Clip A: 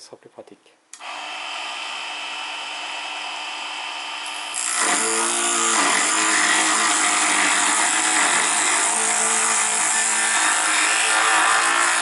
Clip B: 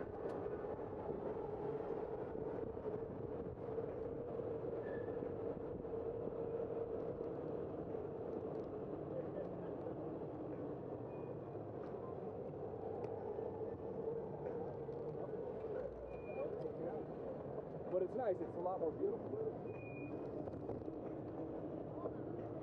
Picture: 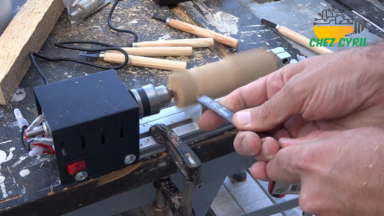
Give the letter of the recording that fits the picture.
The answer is A